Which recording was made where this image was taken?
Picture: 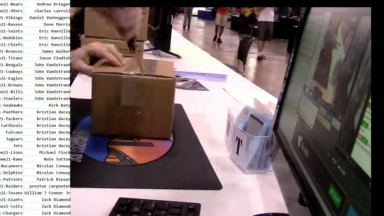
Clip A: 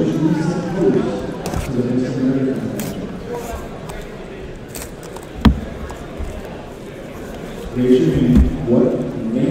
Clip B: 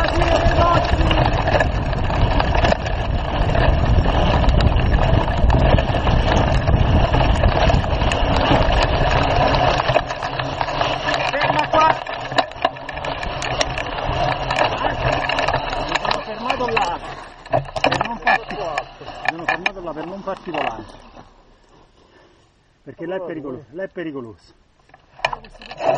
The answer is A